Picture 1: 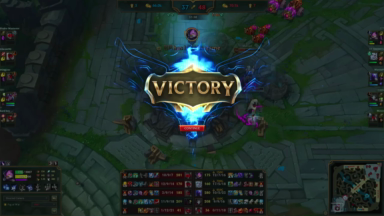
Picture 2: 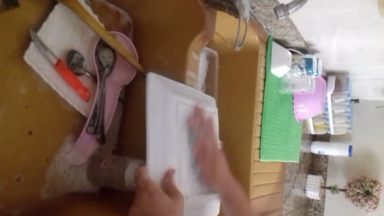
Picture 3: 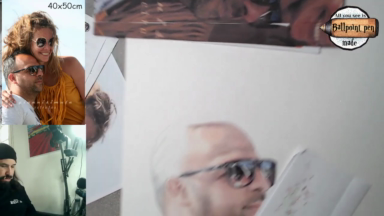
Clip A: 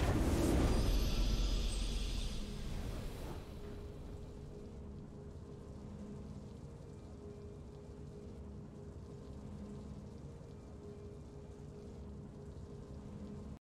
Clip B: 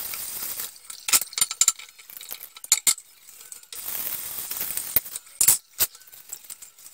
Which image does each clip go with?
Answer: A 1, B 2